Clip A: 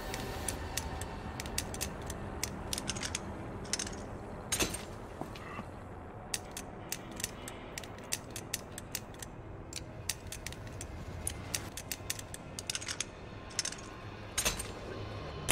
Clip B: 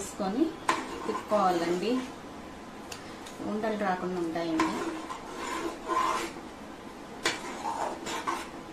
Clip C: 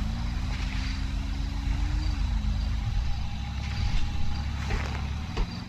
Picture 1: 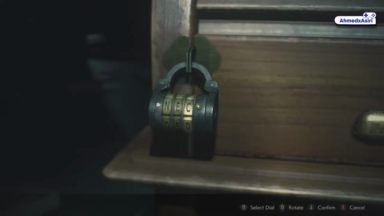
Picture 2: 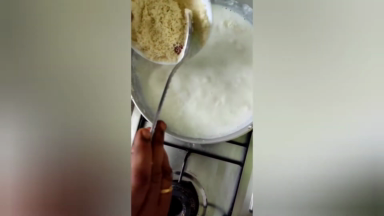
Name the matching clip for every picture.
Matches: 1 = A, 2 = B